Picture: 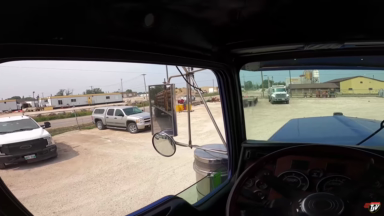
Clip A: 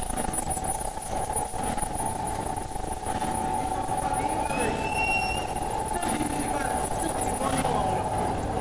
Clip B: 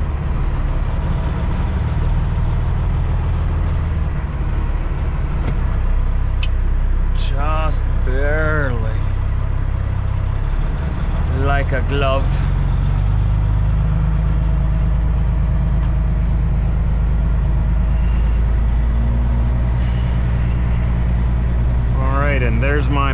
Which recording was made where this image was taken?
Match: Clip B